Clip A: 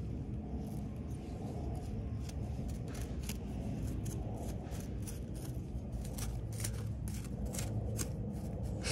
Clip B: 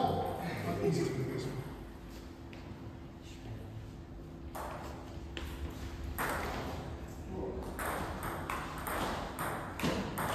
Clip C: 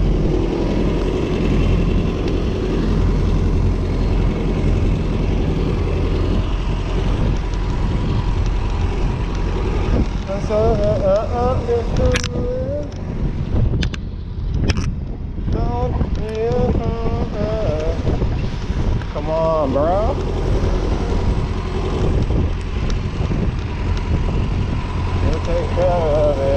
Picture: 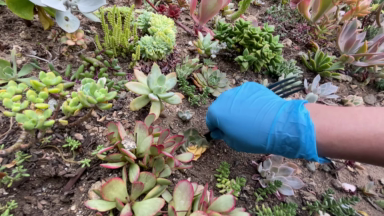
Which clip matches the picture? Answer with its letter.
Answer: A